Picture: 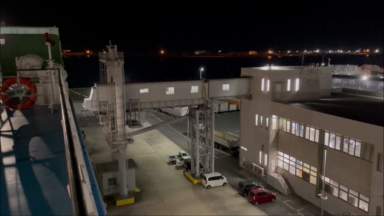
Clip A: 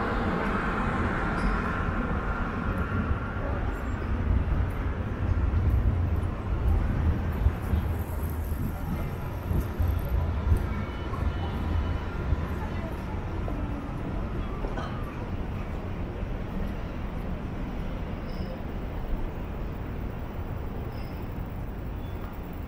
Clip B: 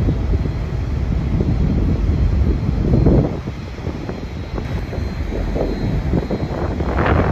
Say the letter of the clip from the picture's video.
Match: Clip B